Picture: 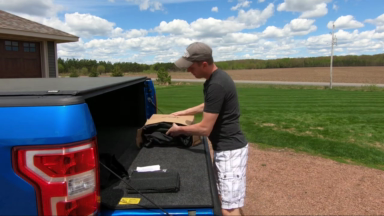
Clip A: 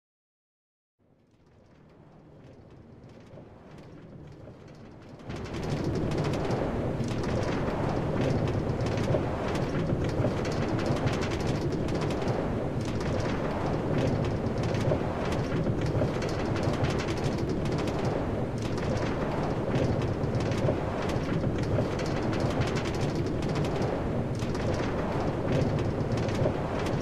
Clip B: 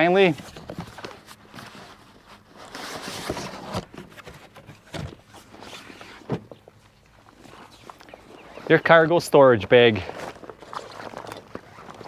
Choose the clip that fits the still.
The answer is B